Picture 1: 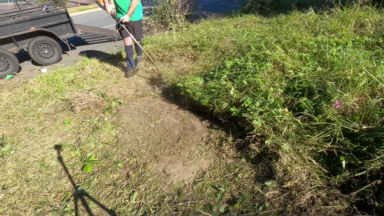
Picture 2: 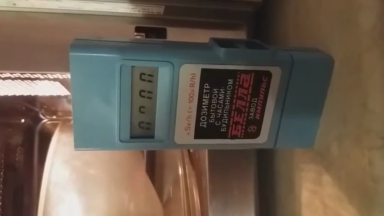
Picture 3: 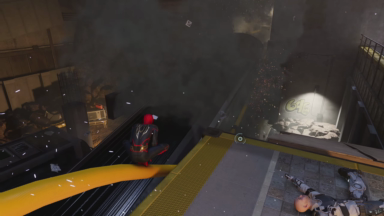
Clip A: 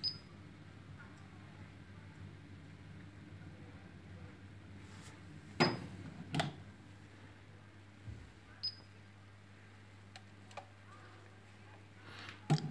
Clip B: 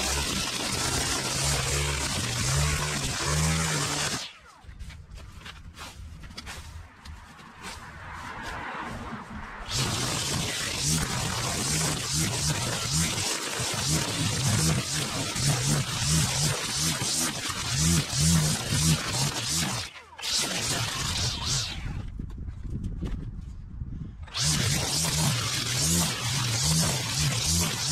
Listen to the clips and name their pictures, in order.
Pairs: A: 2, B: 1